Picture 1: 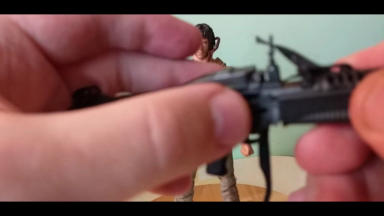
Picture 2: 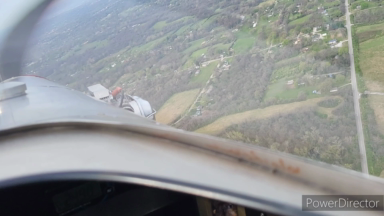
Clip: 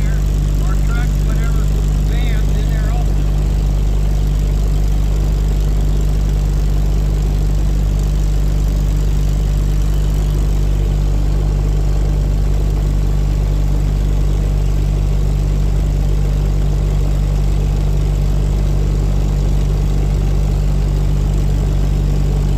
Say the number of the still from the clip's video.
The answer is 2